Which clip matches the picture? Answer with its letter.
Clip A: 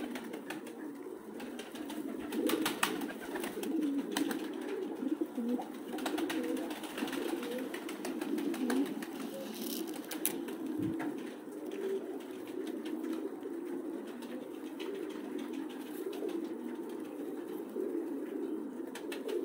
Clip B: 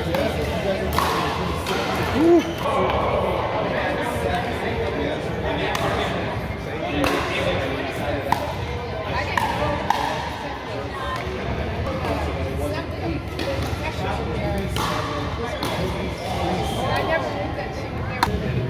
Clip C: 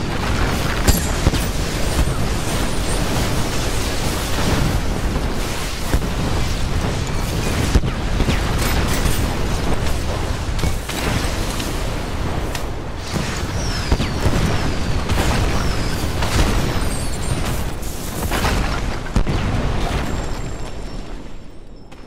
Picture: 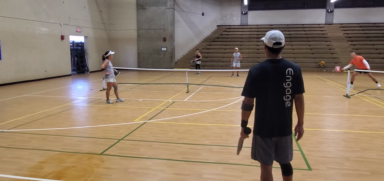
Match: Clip B